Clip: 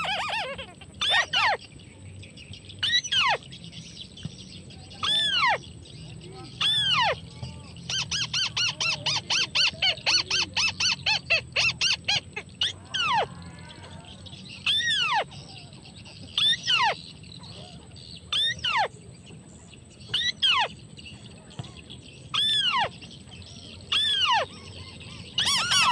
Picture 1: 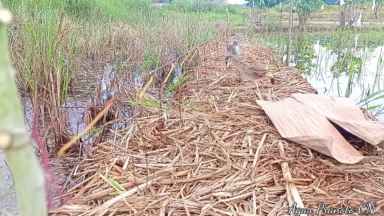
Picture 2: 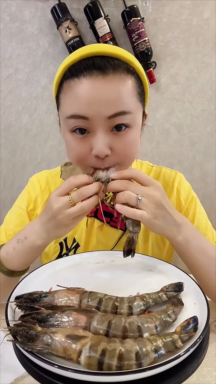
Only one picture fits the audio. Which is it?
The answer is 1